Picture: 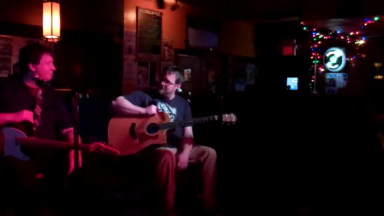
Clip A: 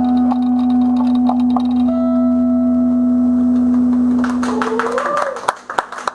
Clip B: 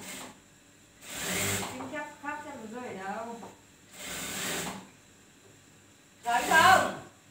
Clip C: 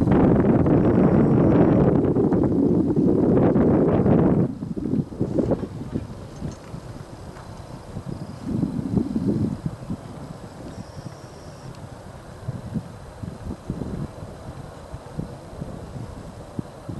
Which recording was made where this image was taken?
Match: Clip A